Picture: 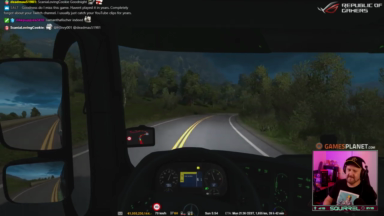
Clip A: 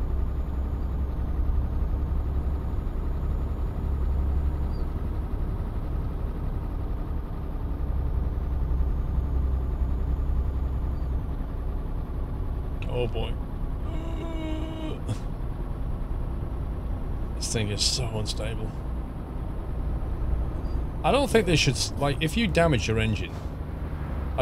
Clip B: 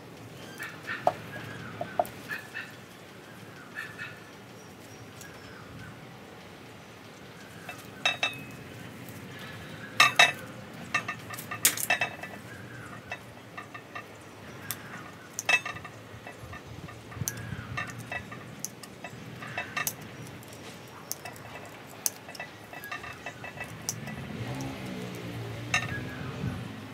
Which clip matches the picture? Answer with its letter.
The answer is A